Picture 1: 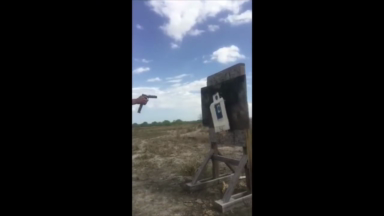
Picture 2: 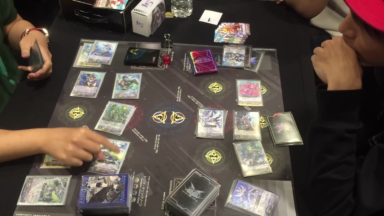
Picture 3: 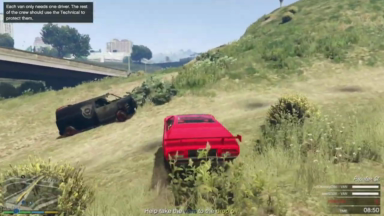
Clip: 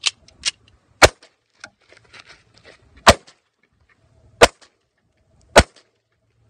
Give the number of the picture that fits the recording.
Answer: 1